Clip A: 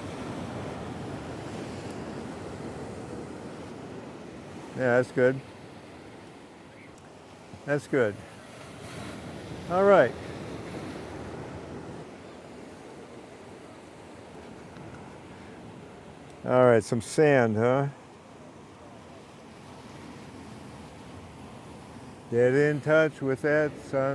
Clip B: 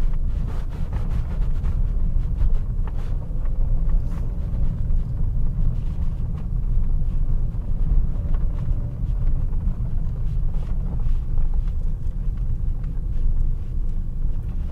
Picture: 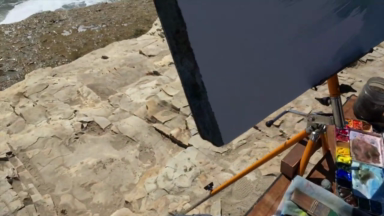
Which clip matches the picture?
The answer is A